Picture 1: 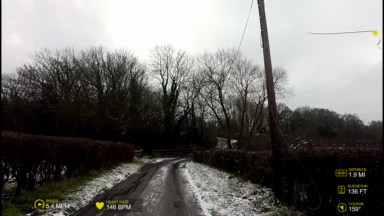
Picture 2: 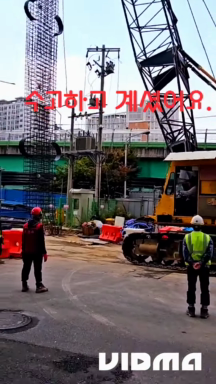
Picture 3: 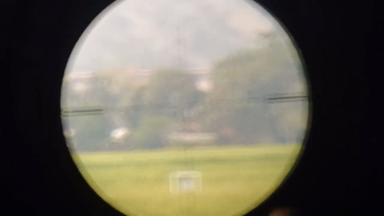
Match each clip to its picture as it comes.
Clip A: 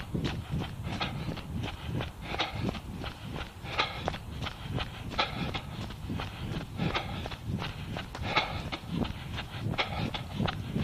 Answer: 1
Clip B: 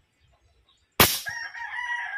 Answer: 3